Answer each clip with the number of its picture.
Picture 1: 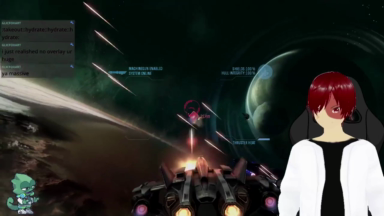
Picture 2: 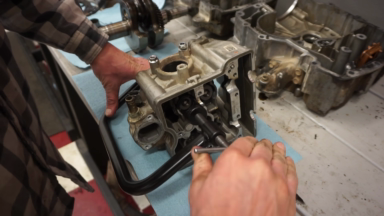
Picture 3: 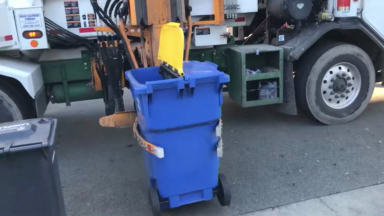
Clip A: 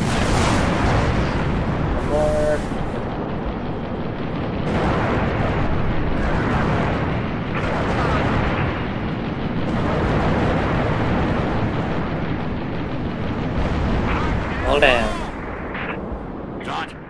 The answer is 1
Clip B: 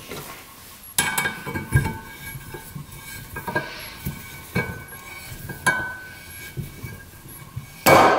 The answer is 2